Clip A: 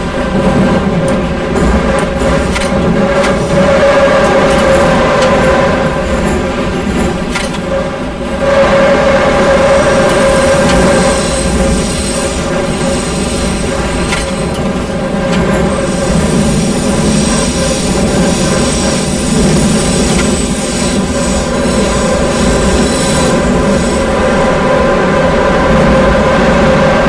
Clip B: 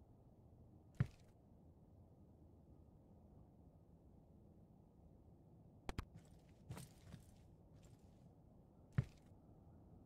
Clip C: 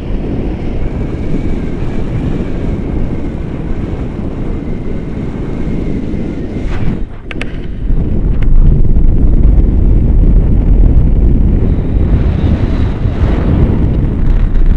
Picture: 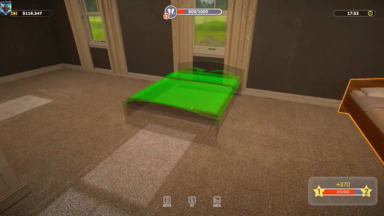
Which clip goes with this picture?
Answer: B